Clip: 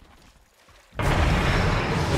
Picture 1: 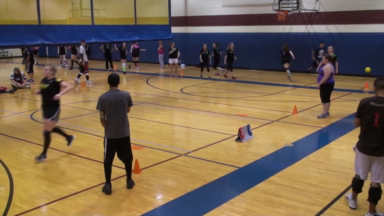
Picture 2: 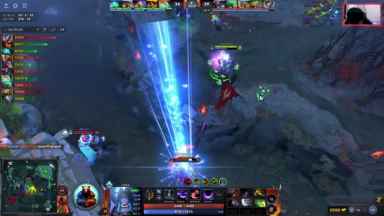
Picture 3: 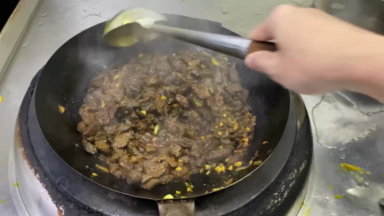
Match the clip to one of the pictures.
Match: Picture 2